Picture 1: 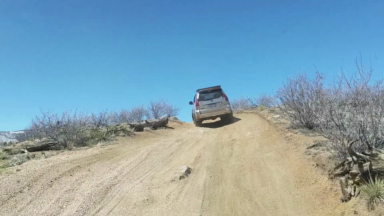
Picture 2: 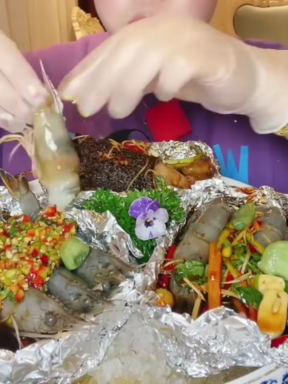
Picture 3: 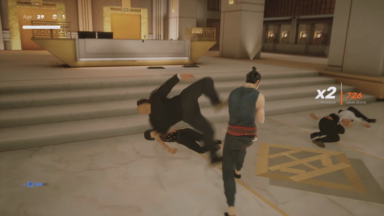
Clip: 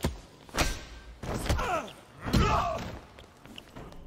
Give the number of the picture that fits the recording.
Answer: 3